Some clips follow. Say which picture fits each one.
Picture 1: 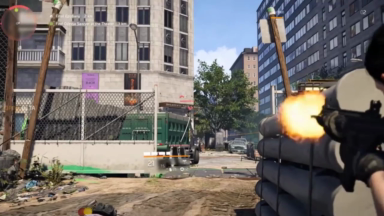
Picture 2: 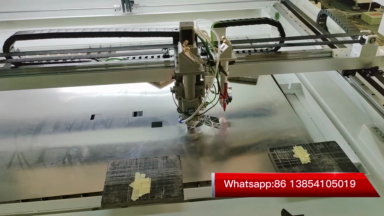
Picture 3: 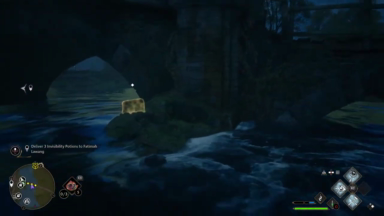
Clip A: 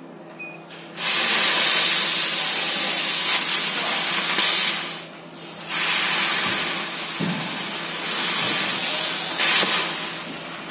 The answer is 2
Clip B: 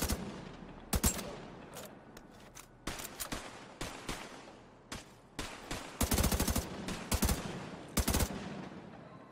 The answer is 1